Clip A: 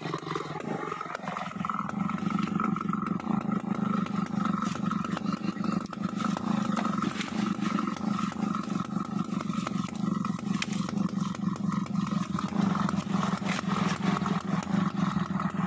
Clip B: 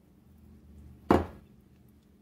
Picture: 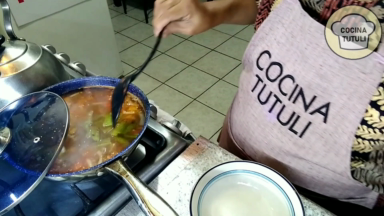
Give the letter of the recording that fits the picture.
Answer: B